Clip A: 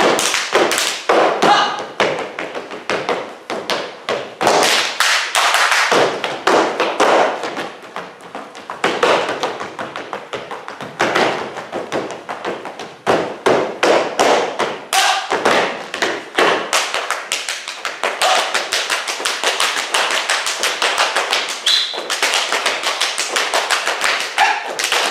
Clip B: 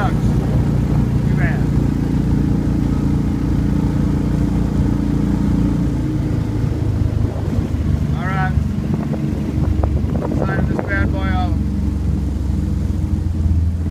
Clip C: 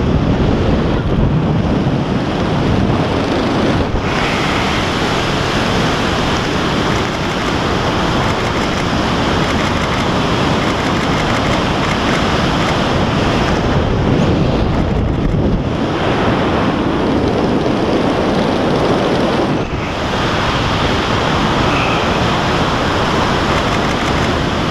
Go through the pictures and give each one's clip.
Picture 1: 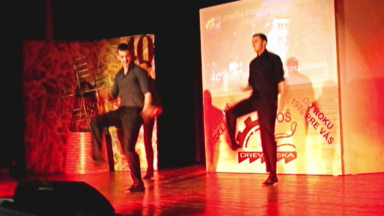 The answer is A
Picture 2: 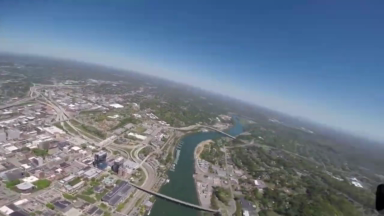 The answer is C